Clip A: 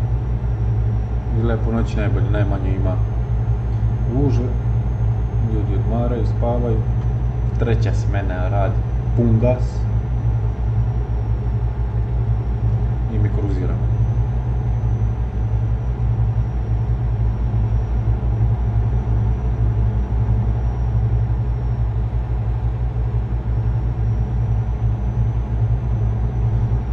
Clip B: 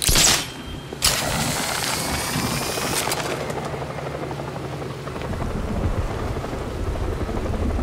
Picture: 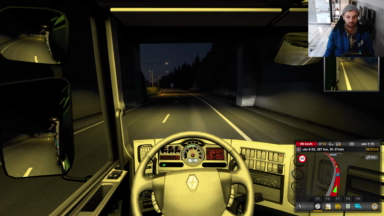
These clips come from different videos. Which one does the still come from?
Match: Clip A